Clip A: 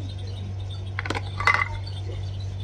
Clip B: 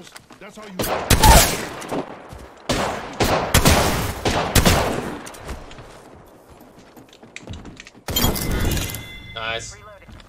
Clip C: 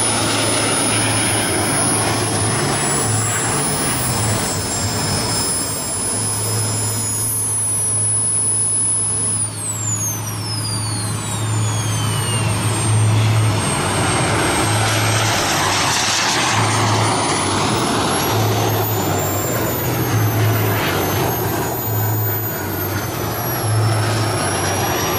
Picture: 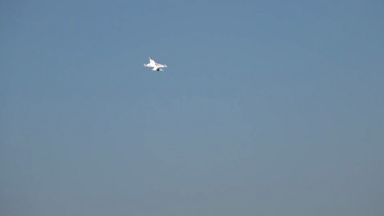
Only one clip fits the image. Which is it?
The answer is C